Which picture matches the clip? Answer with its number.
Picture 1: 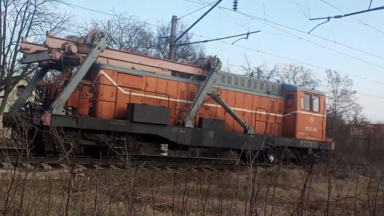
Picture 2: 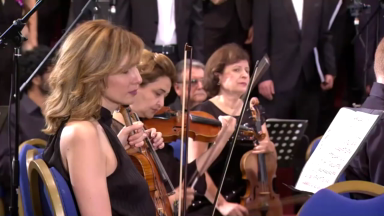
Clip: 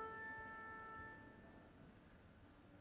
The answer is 2